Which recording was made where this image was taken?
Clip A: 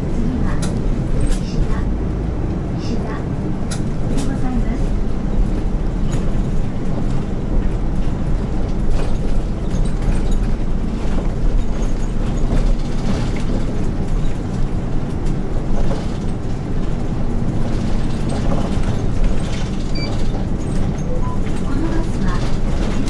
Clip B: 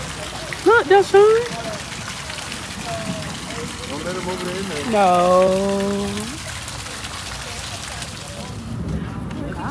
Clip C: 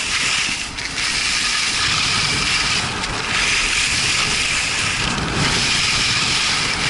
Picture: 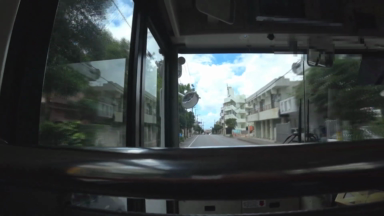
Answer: A